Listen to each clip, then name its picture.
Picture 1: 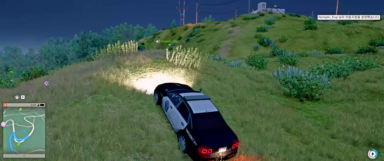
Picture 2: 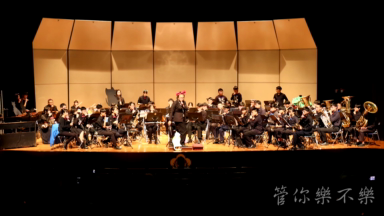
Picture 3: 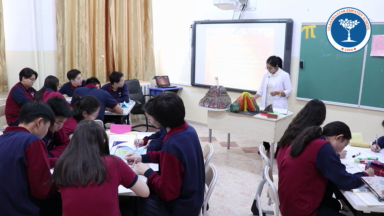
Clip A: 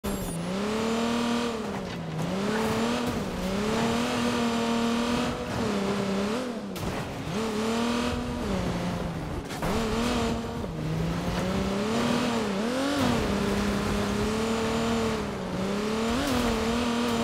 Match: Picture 1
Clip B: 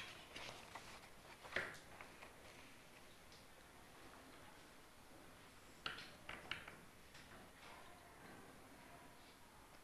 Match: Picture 3